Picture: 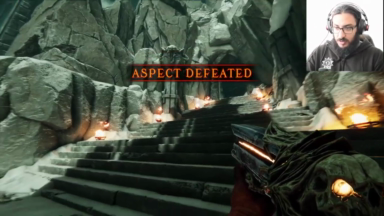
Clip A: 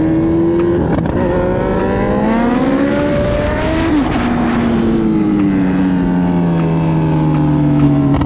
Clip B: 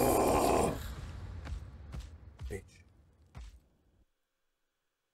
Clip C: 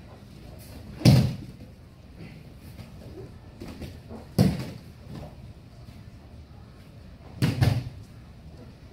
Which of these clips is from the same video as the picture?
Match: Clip B